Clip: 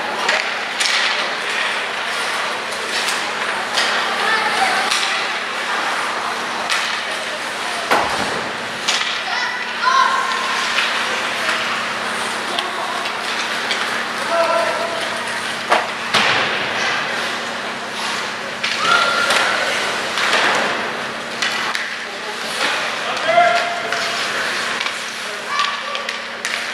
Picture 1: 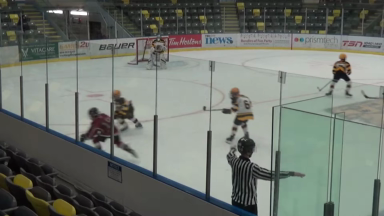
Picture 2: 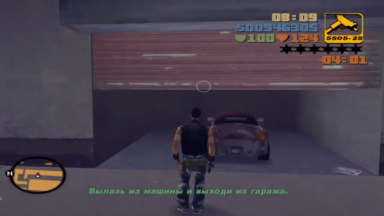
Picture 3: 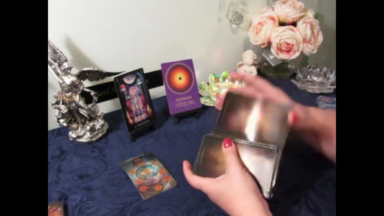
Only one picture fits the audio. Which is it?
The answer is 1